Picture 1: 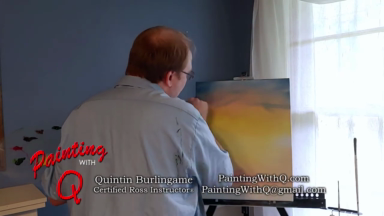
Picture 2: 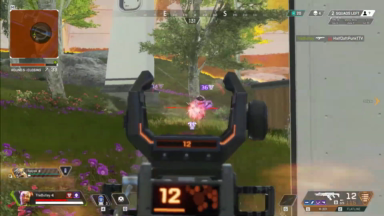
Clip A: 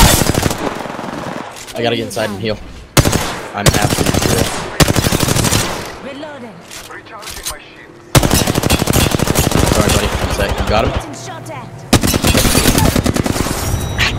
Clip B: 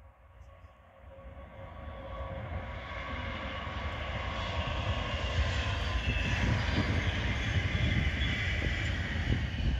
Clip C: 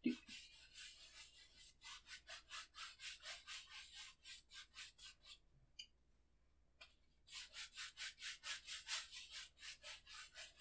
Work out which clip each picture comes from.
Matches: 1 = C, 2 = A